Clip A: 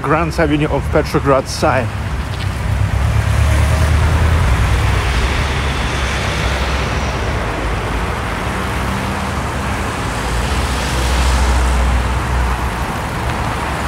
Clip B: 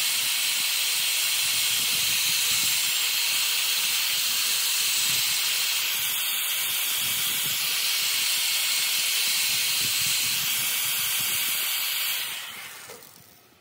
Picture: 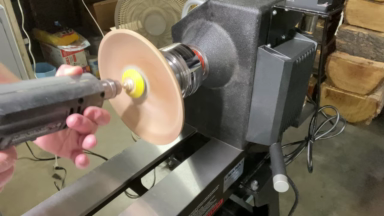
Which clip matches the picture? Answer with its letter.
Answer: B